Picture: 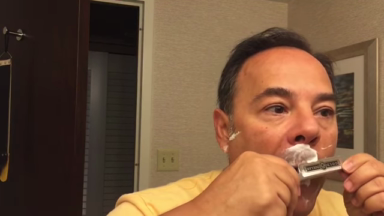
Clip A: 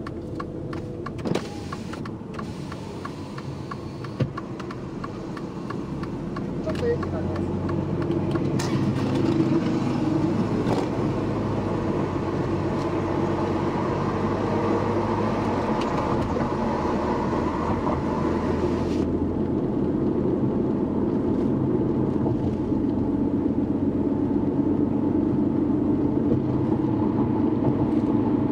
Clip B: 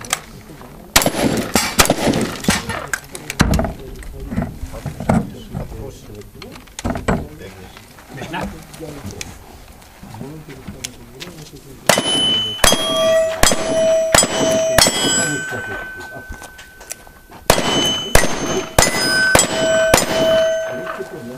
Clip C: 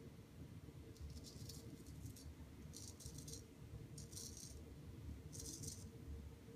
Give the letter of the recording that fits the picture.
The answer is C